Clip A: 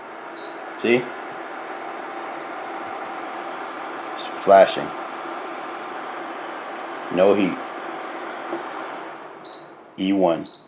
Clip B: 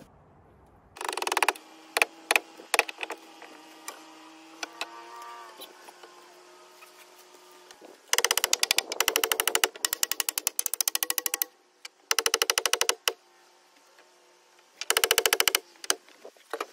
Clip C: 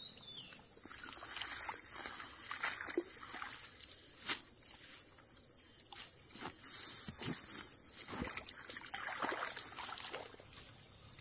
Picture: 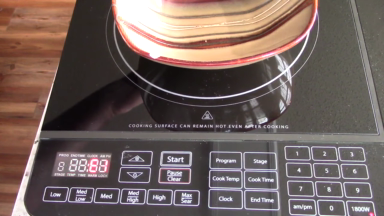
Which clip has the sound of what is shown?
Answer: A